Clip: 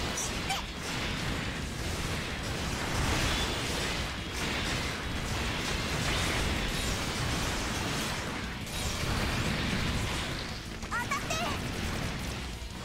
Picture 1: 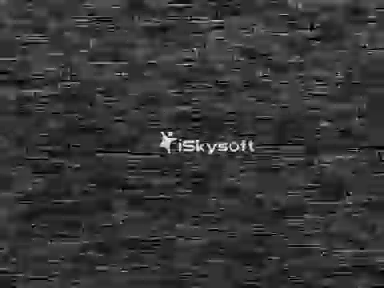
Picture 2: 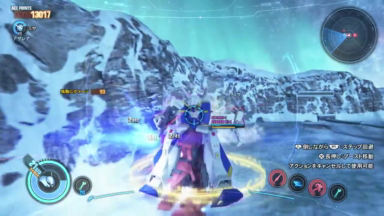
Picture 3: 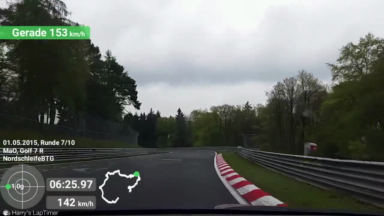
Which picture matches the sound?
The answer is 2